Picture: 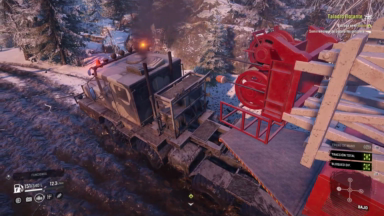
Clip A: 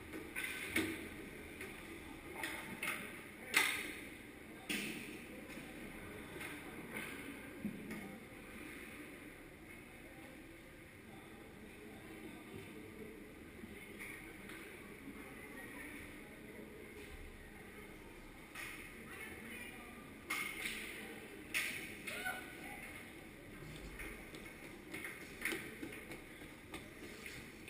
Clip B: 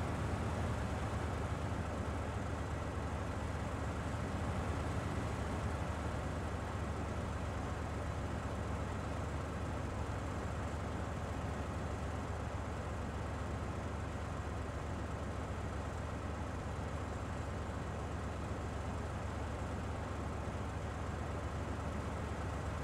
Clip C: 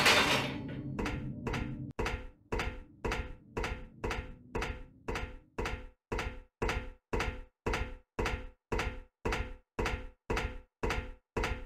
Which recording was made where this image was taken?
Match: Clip B